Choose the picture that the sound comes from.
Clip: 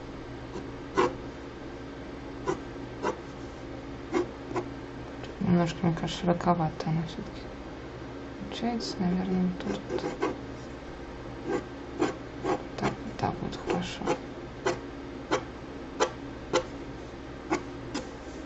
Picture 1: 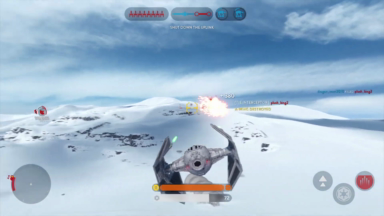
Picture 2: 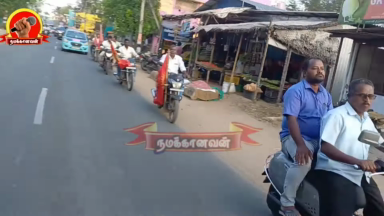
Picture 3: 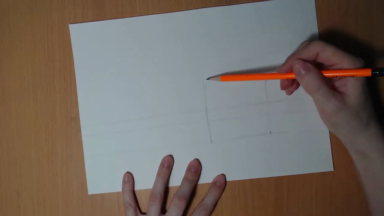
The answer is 3